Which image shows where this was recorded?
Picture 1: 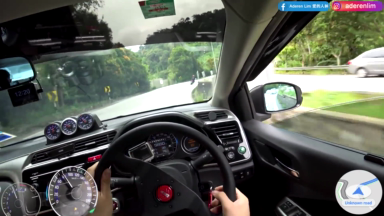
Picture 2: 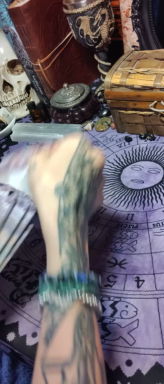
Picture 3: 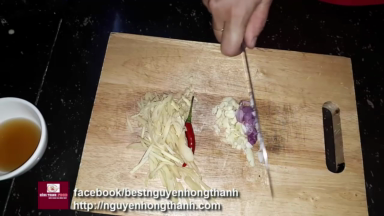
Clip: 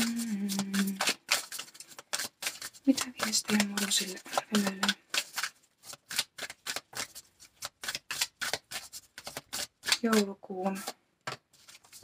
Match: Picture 2